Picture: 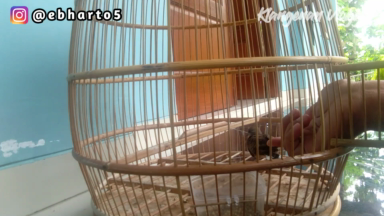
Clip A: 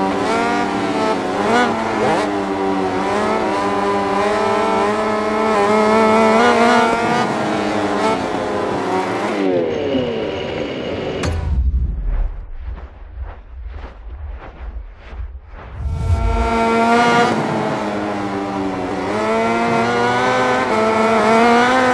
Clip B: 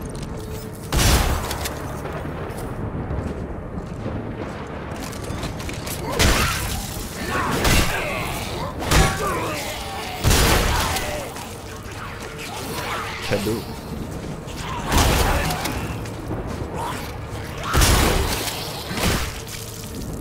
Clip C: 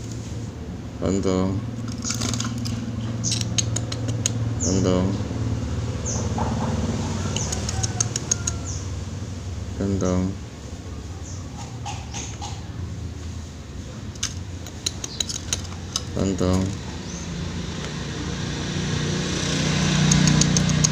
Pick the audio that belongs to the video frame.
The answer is C